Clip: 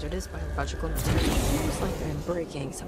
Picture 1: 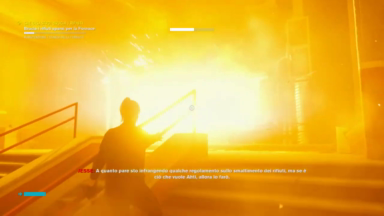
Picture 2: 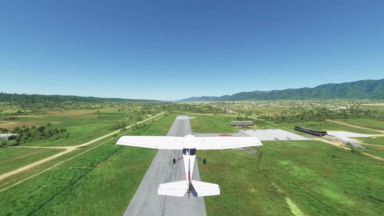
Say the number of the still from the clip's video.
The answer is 1